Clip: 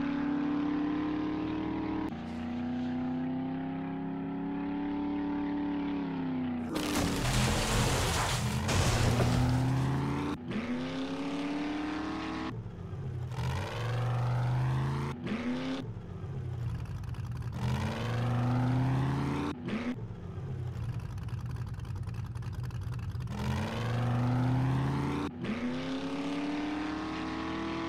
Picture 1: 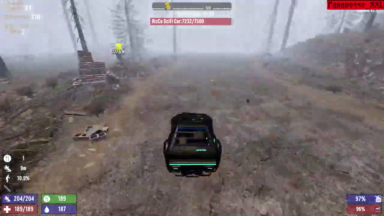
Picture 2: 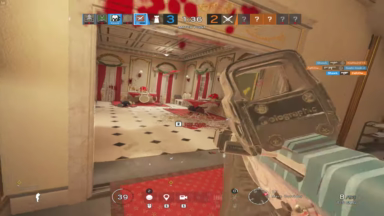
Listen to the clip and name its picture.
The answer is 1